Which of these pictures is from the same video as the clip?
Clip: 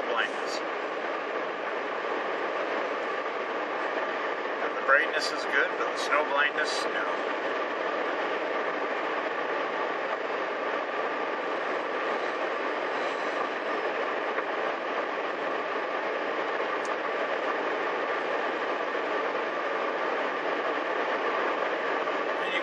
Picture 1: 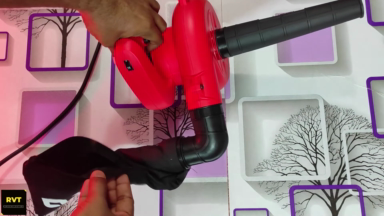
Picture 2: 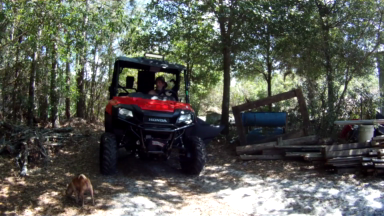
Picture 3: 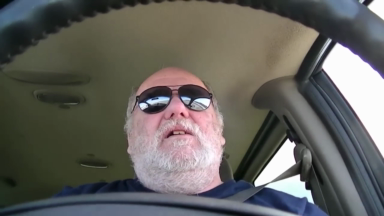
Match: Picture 3